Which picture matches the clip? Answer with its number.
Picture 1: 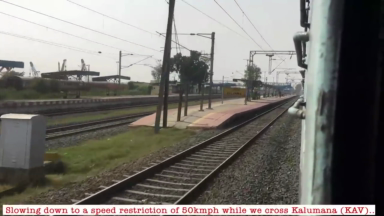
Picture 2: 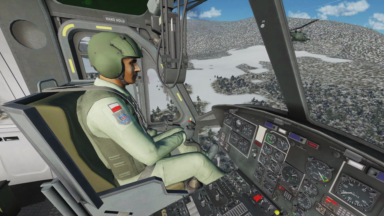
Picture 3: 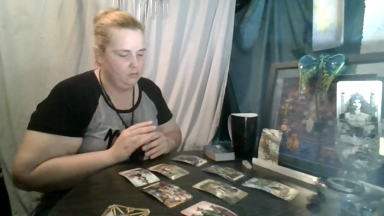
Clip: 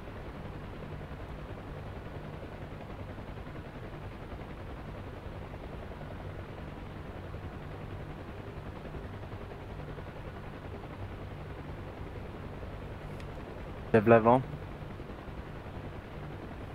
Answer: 2